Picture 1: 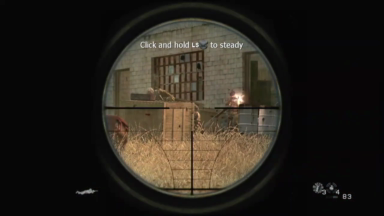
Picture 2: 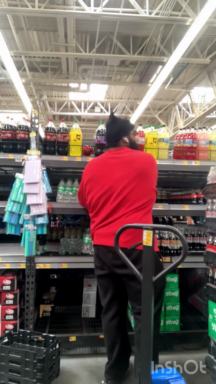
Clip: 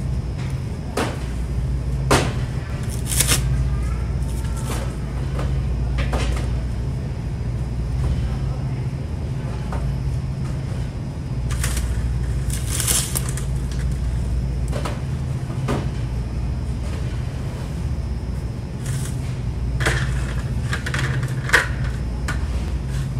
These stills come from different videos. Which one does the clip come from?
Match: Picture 2